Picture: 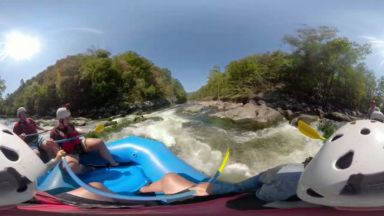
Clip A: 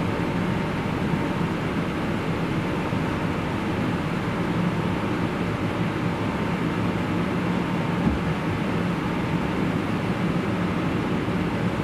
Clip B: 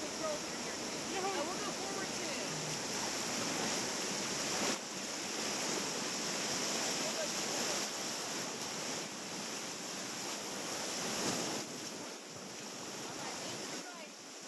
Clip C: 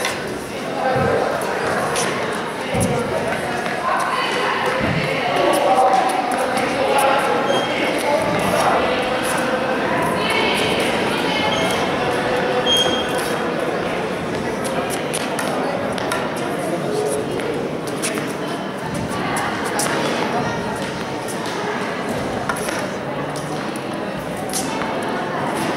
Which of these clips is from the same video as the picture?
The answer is B